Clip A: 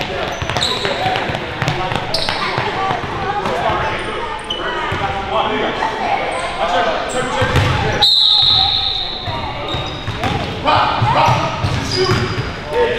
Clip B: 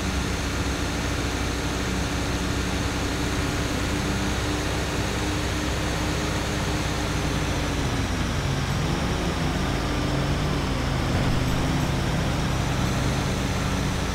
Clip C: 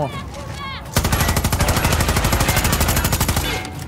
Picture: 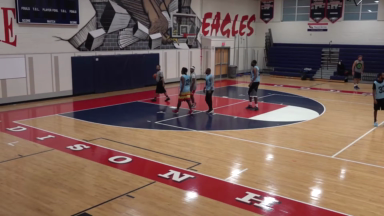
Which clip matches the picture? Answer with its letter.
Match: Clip A